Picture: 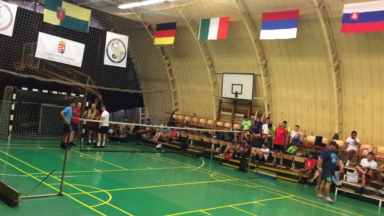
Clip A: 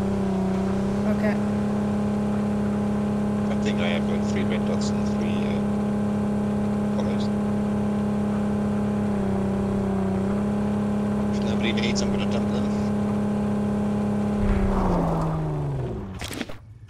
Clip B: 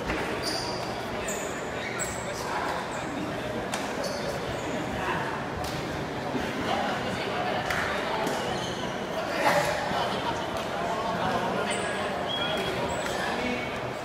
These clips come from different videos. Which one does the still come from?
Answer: B